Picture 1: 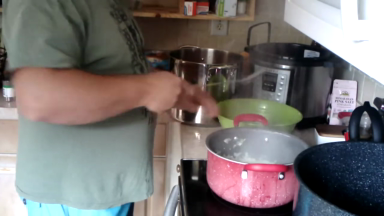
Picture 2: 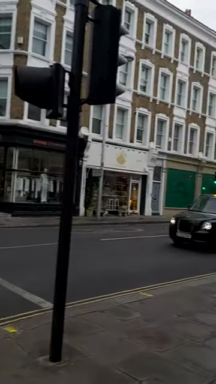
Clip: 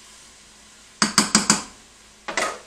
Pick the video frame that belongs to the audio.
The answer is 1